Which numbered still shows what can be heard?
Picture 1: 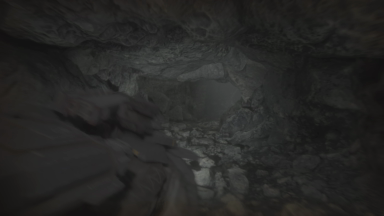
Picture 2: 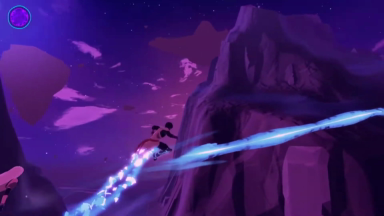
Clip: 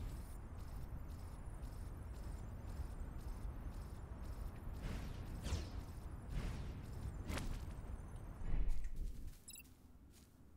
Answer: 2